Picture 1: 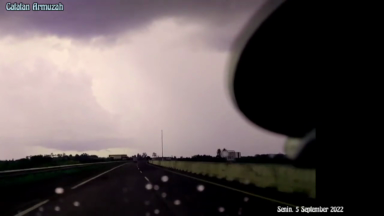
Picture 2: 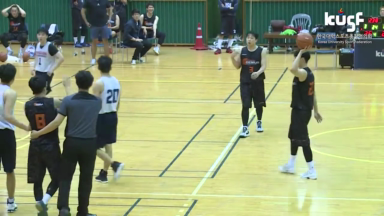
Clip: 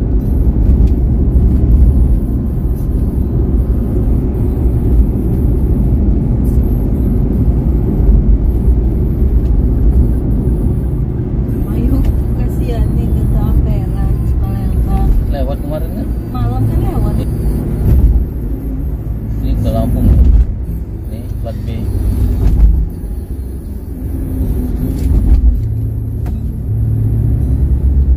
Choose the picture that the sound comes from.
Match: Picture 1